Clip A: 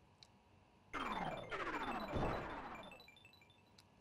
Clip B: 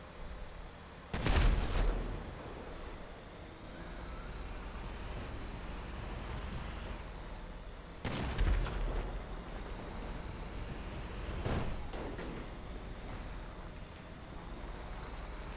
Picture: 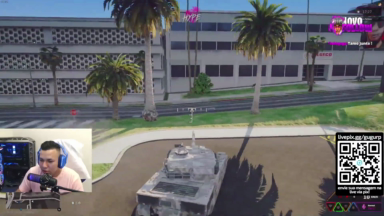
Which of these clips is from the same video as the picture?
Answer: B